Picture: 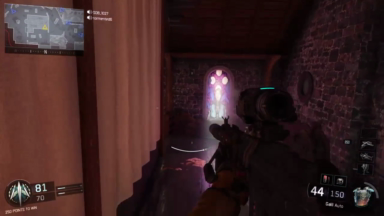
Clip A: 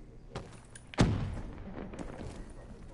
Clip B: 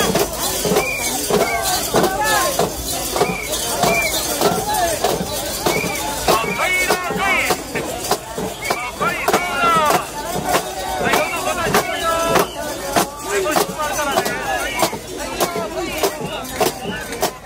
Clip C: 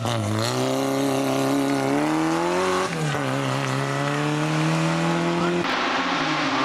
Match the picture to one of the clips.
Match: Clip A